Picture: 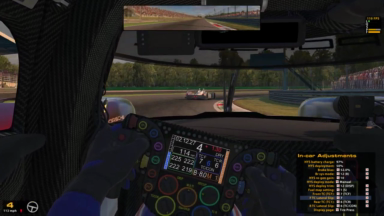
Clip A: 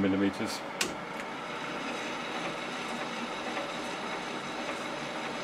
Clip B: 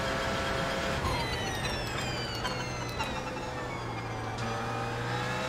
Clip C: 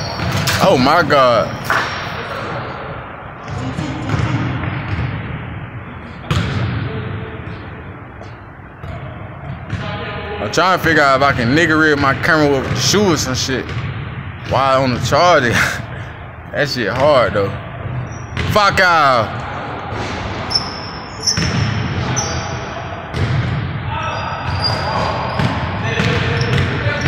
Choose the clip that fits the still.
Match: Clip B